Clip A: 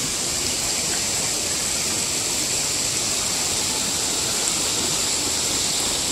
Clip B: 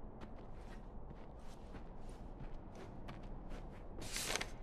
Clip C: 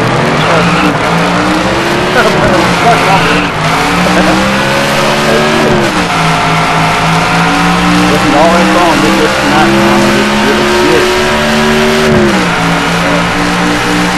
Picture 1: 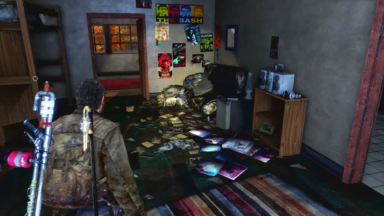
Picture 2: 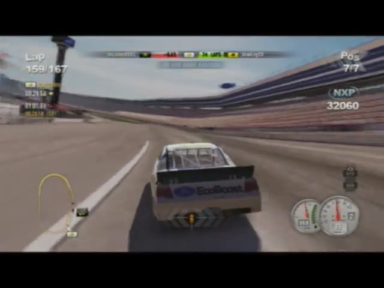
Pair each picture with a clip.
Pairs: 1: B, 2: C